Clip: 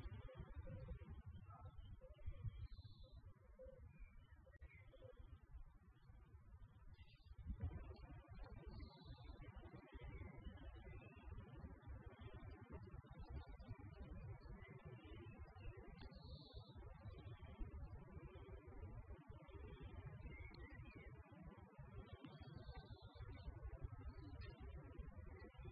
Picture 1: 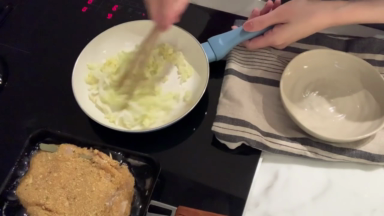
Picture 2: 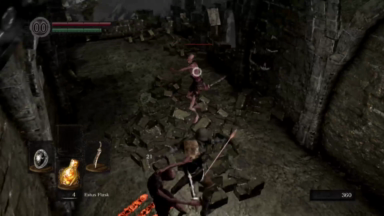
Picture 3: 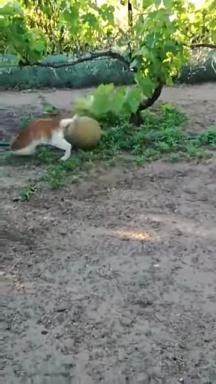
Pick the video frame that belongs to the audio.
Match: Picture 3